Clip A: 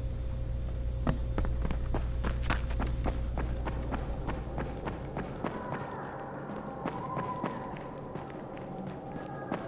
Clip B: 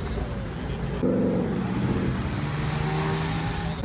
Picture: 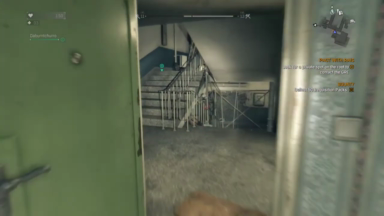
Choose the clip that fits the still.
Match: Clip A